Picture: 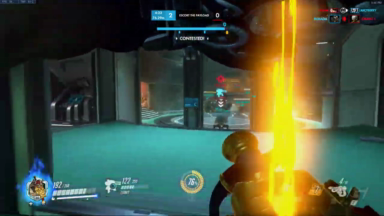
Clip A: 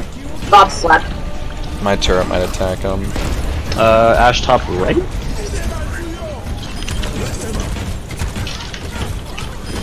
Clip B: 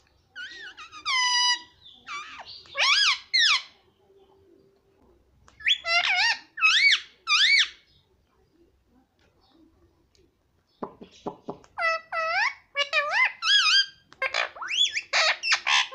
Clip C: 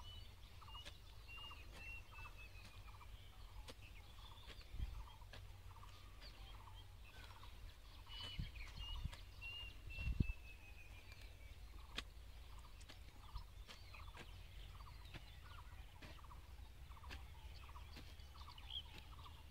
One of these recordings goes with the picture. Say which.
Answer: A